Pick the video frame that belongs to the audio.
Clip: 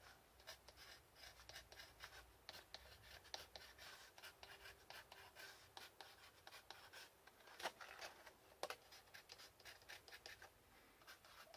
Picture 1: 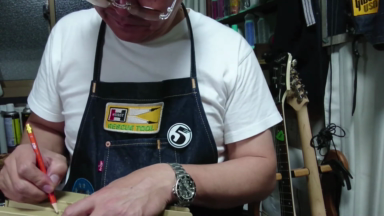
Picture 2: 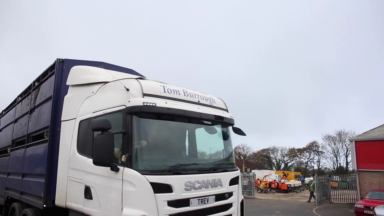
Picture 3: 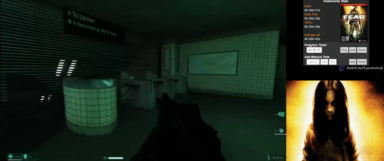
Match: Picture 1